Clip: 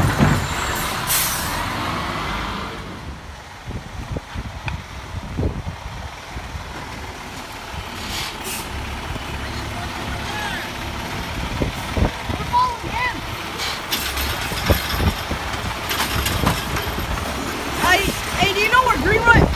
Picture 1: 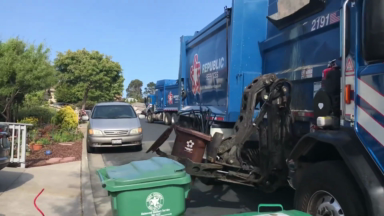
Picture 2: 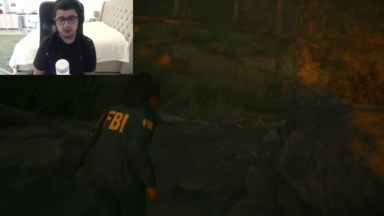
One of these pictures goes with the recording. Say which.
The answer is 1